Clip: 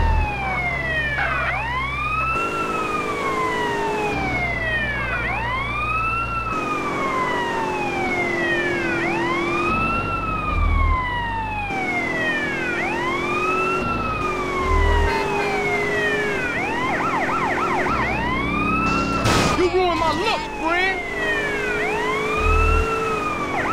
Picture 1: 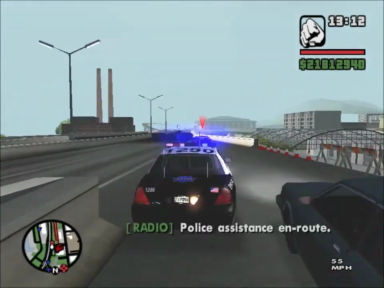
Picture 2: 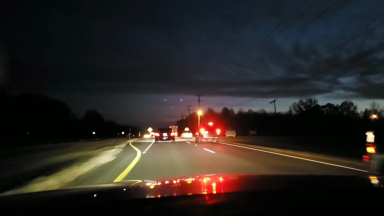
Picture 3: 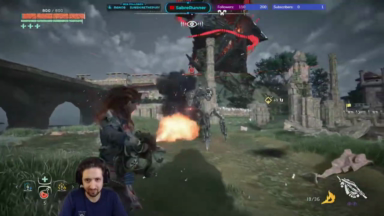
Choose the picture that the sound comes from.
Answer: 1